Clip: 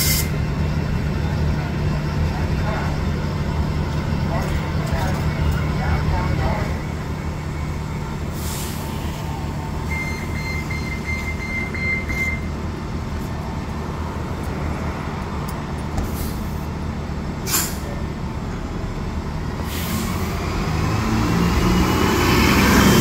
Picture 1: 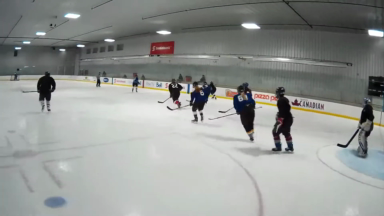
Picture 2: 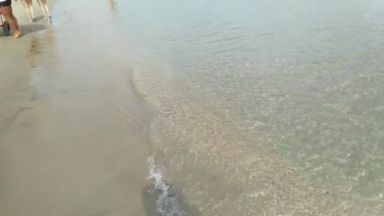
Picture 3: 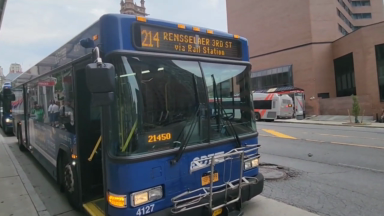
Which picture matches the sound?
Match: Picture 3